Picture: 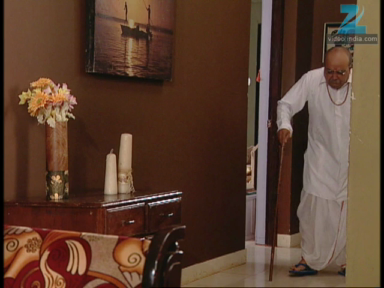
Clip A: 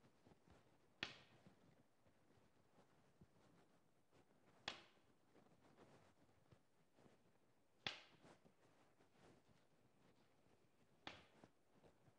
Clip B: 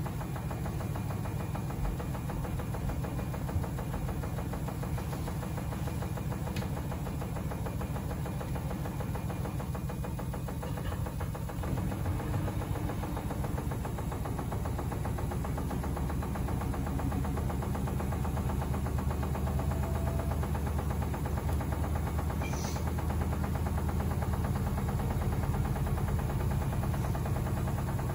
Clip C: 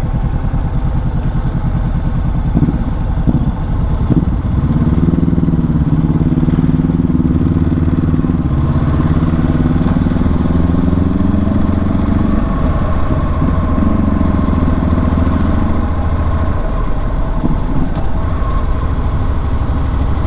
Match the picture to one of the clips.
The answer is A